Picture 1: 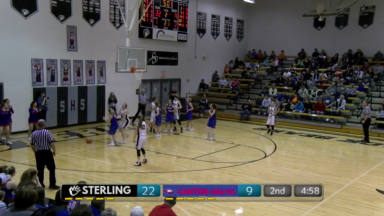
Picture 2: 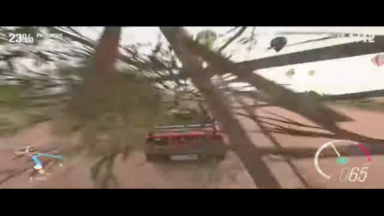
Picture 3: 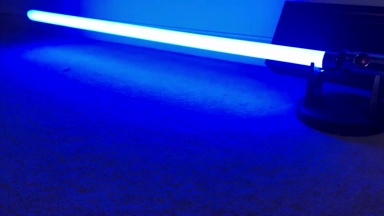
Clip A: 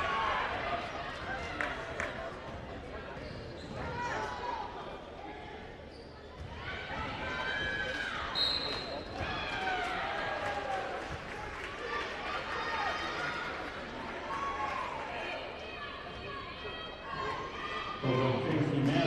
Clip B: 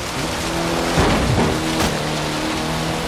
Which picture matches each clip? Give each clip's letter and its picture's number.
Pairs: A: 1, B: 2